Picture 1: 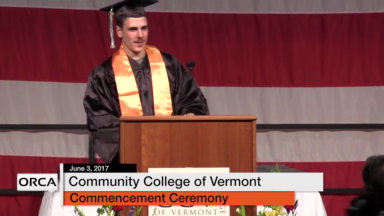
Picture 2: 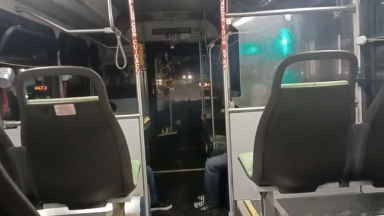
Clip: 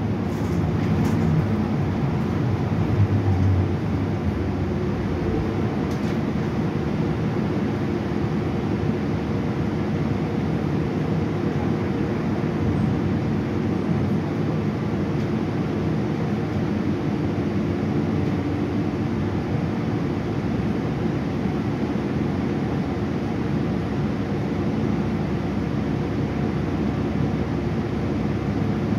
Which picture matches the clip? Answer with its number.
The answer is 2